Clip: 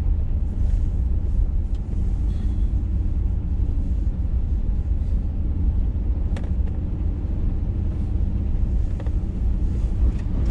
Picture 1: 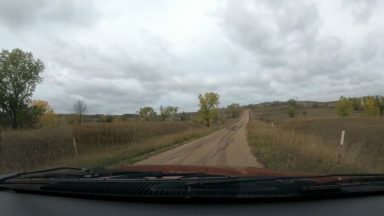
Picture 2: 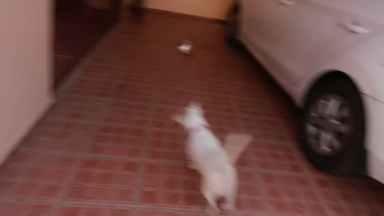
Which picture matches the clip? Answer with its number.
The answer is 1